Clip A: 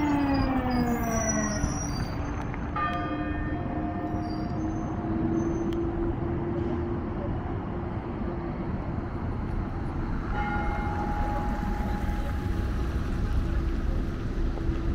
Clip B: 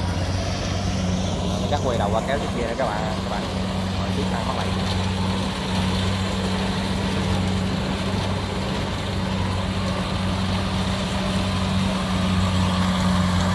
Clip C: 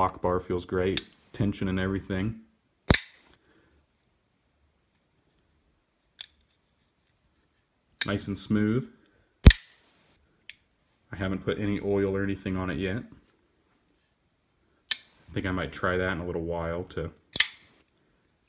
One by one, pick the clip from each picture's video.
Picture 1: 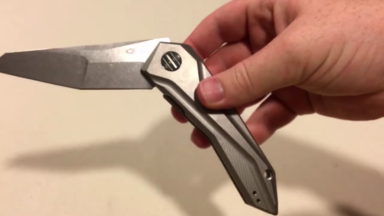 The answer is C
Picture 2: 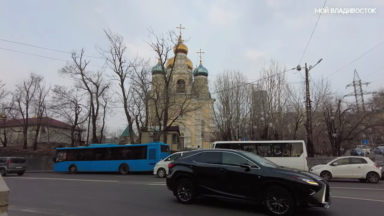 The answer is A